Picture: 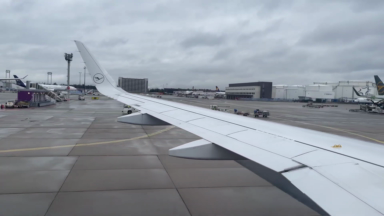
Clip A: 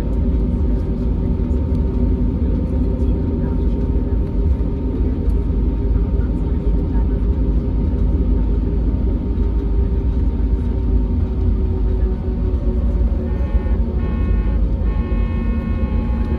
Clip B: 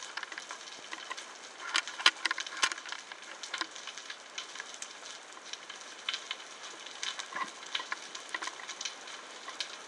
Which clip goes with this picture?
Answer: A